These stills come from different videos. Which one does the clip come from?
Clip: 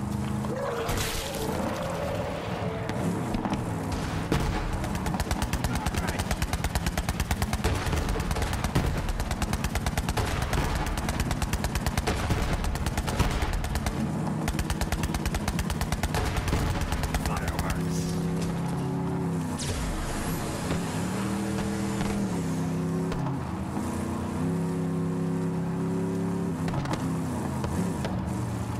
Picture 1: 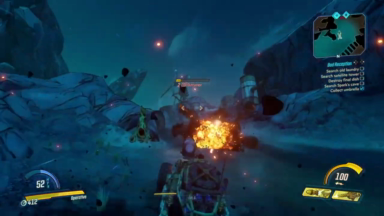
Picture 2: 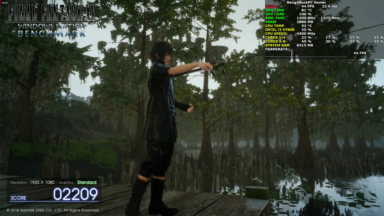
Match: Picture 1